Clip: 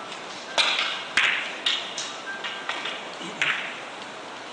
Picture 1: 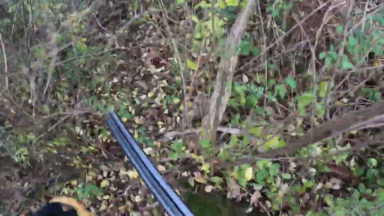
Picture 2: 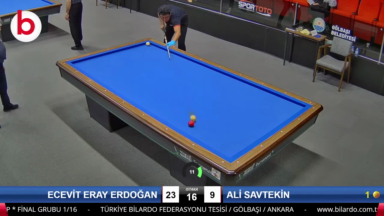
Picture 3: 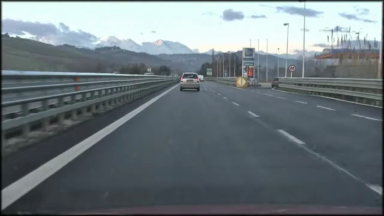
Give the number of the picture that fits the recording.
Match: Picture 2